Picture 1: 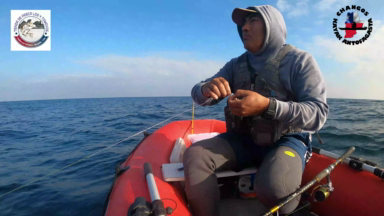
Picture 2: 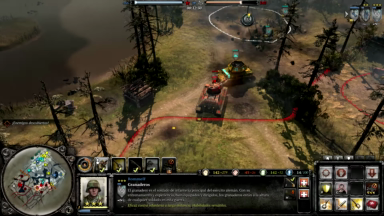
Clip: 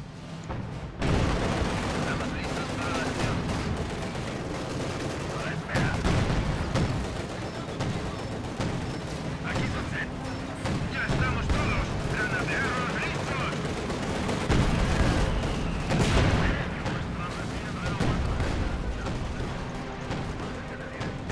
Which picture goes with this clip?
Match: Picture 2